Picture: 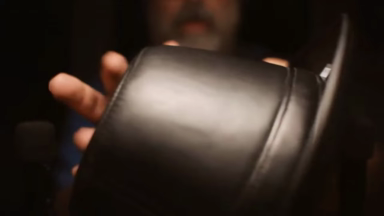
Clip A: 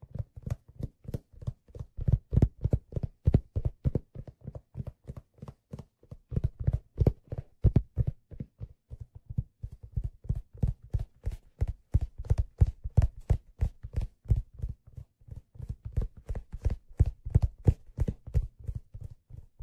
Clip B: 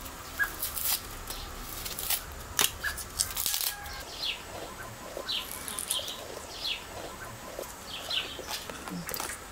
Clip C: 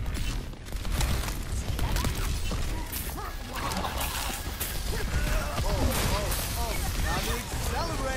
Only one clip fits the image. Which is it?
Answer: A